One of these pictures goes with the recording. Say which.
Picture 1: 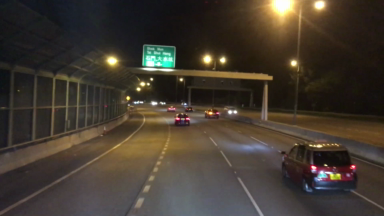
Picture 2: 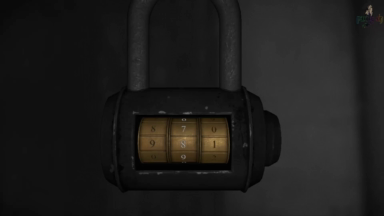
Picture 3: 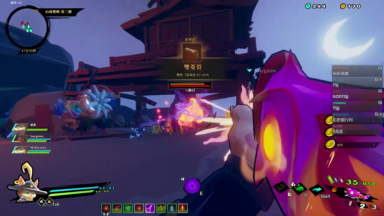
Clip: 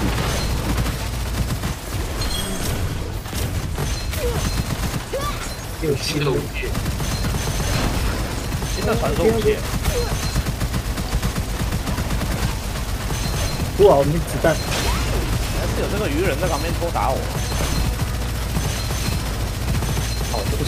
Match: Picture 3